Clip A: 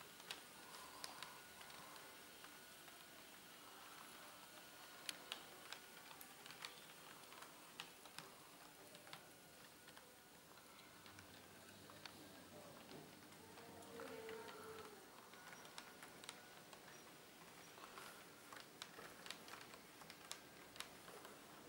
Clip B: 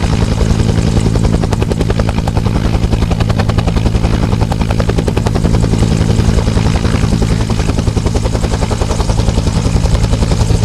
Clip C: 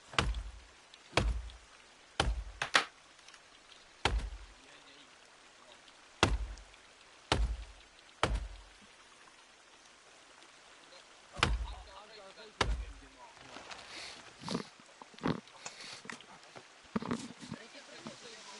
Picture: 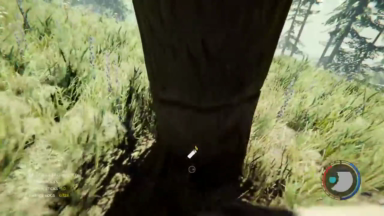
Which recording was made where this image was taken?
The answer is C